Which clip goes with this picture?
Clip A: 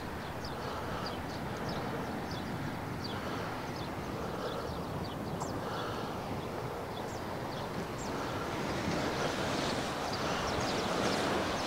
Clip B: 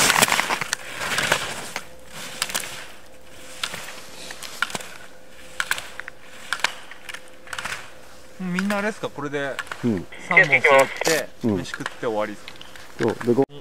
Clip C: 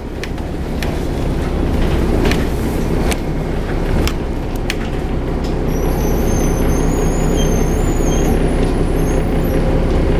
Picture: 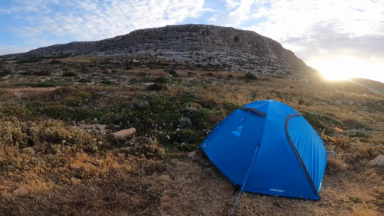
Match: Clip A